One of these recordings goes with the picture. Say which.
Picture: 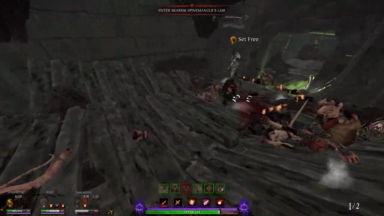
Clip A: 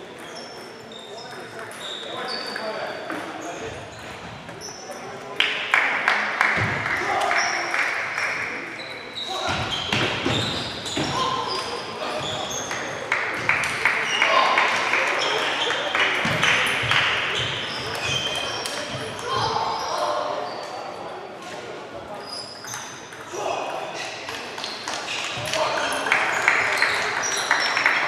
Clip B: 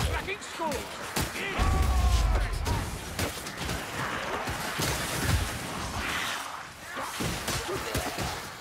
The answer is B